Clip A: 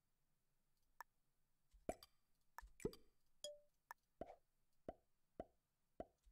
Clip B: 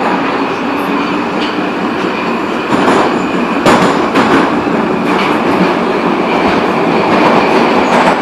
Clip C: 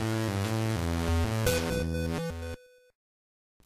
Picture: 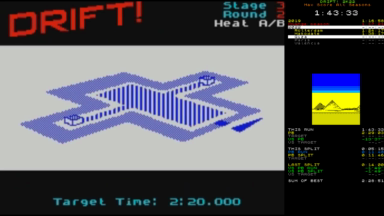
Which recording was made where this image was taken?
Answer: C